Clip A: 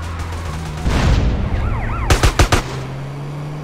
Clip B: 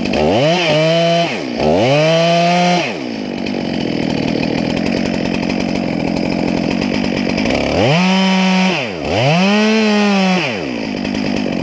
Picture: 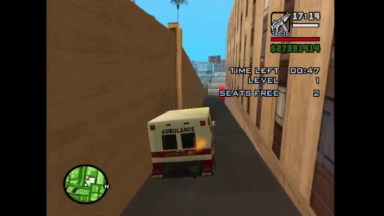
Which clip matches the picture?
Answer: A